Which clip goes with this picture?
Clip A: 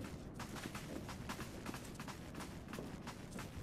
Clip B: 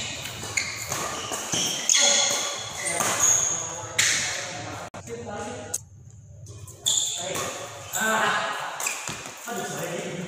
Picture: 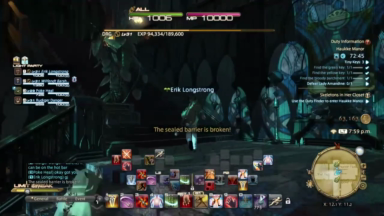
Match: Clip A